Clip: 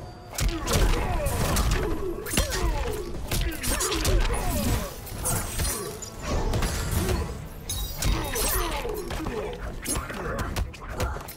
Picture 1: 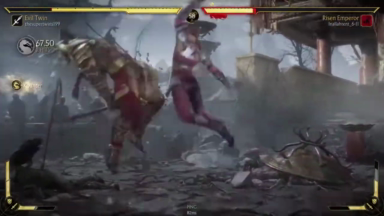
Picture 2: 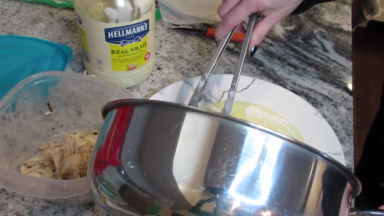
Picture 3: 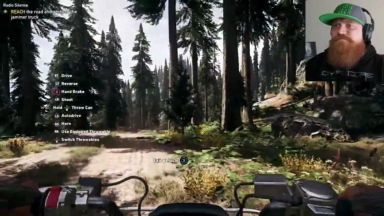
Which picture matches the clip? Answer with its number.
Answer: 1